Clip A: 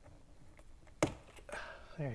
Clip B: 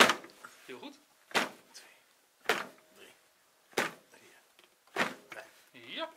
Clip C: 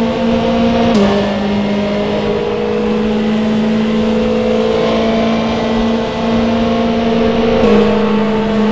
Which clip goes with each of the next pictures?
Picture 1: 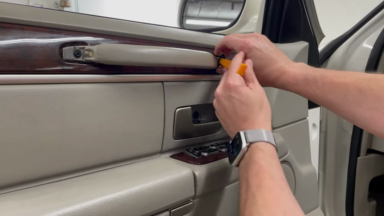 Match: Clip A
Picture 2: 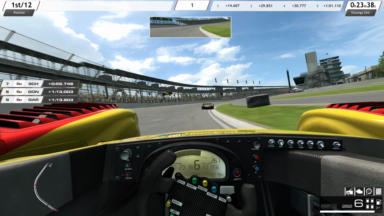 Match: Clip C